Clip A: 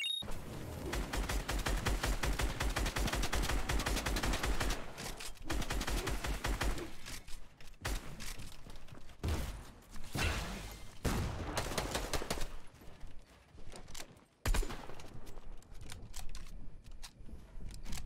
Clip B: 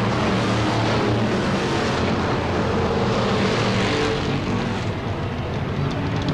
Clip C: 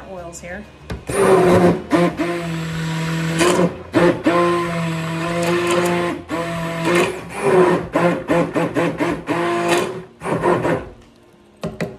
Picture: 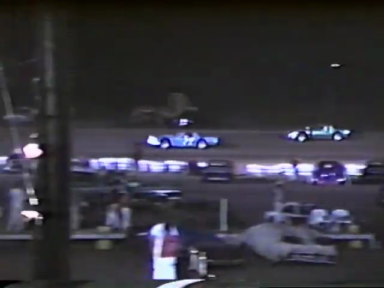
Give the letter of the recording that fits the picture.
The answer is B